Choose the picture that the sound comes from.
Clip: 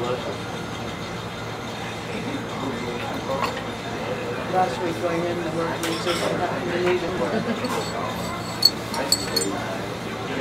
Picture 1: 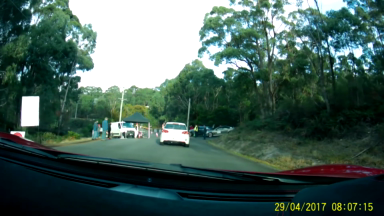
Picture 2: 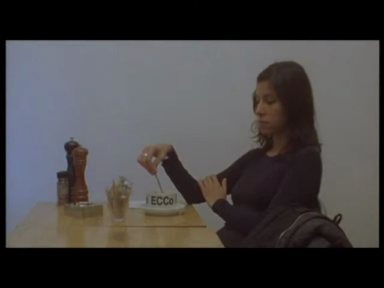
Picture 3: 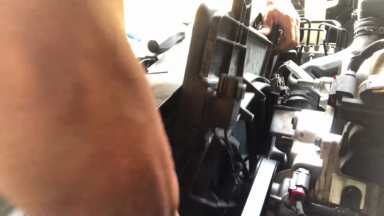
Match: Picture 2